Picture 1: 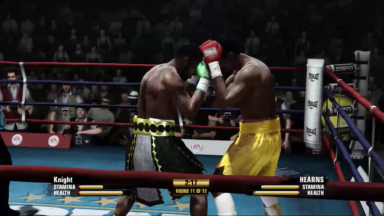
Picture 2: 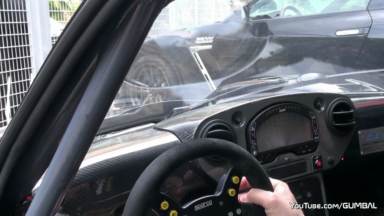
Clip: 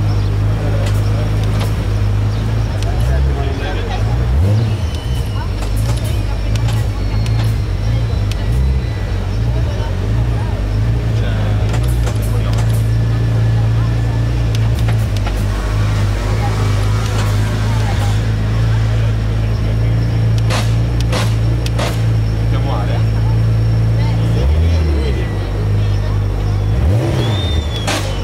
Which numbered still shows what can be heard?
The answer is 2